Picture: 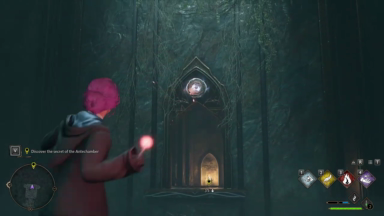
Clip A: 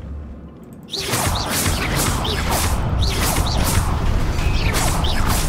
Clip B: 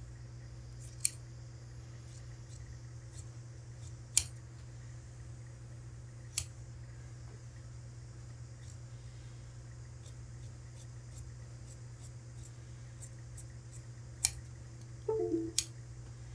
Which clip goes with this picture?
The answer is A